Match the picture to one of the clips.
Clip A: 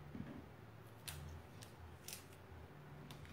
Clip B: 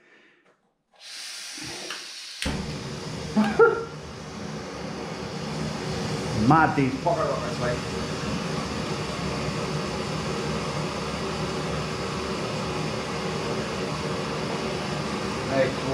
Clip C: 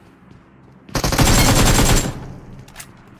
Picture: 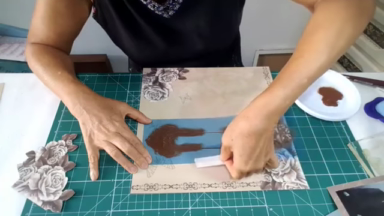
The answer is A